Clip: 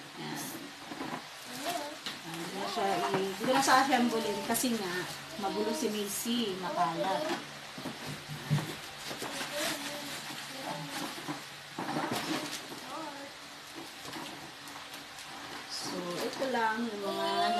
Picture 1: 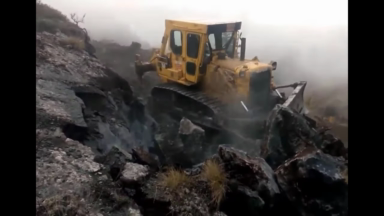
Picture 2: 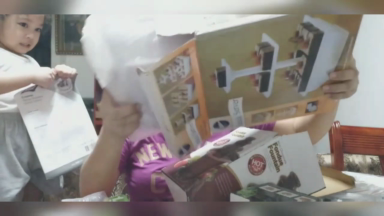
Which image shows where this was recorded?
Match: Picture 2